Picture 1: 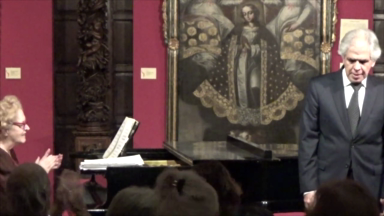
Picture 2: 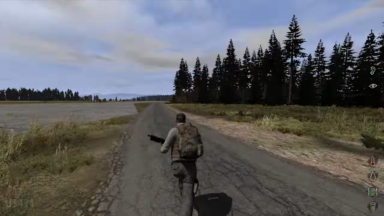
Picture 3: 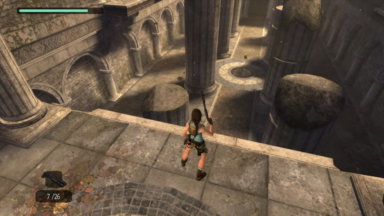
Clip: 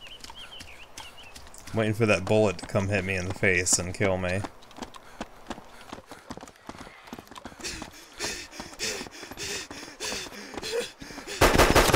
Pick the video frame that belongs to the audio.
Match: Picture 2